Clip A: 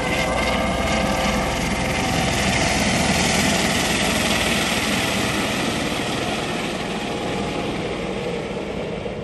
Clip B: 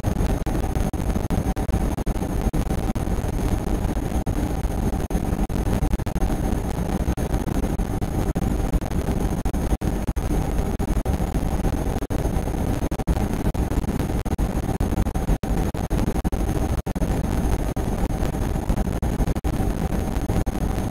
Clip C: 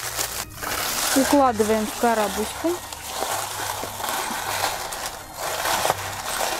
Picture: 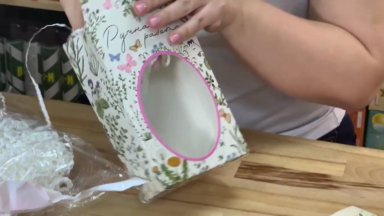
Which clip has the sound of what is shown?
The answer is C